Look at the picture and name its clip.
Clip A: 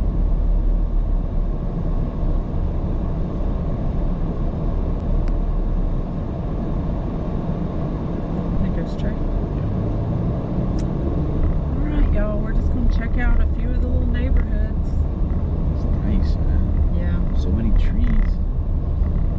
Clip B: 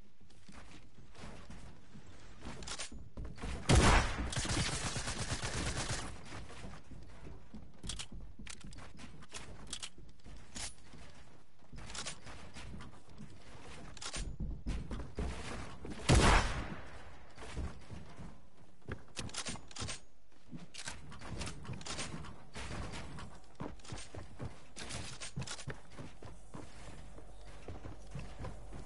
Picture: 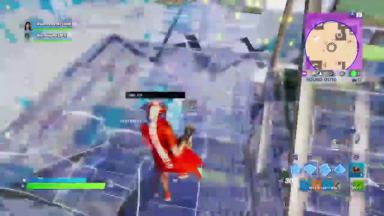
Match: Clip B